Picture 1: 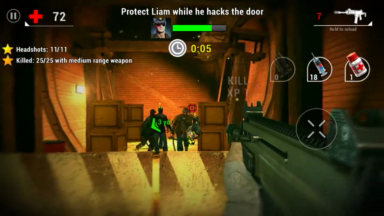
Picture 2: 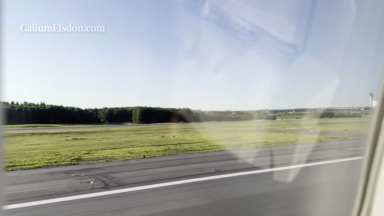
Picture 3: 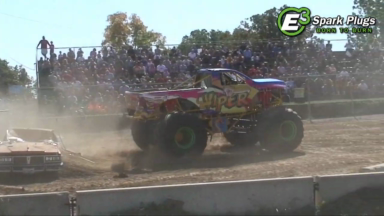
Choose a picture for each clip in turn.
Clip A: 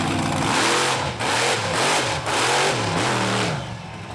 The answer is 3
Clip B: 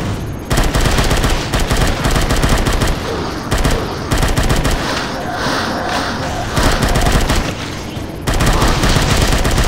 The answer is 1